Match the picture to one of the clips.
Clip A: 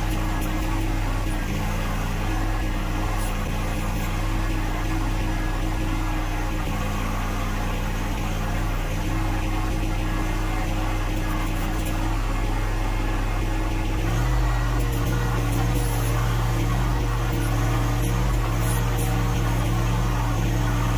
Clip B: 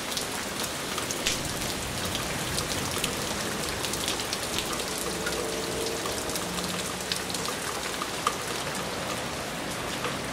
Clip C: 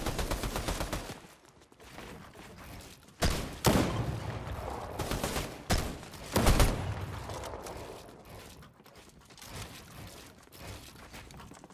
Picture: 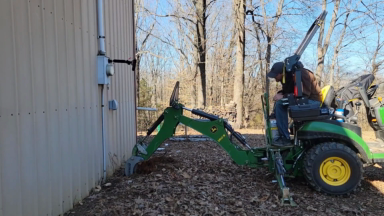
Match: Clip A